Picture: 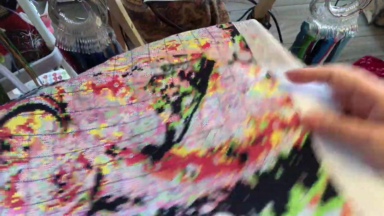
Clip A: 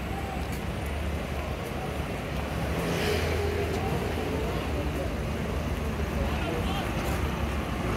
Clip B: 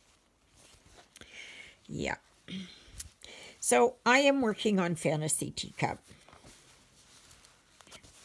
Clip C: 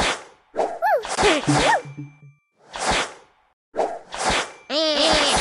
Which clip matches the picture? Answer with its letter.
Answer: B